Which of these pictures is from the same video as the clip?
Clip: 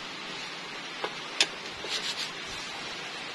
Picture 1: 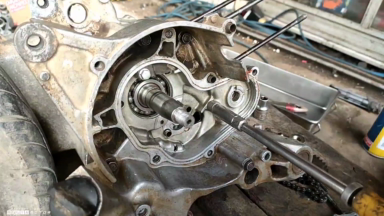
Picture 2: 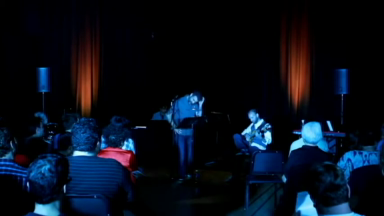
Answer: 1